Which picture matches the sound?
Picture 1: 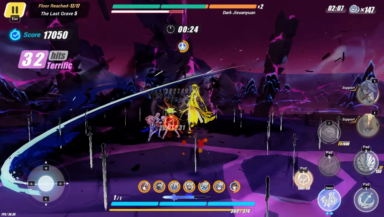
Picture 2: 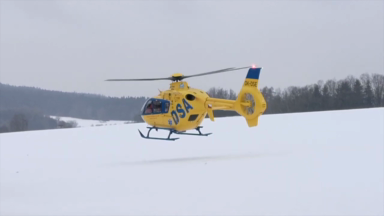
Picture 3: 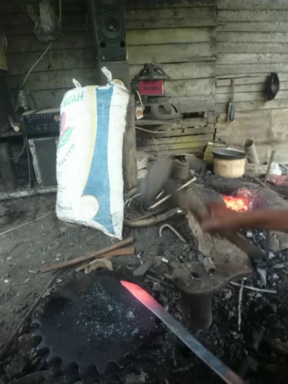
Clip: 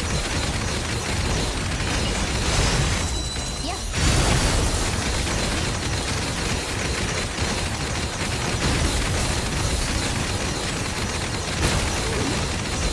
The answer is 1